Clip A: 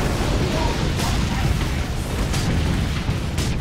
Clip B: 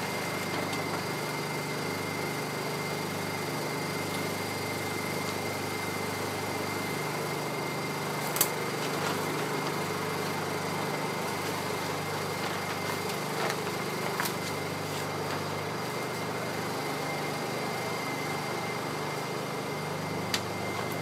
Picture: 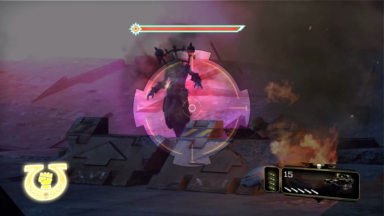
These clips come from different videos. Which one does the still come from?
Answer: A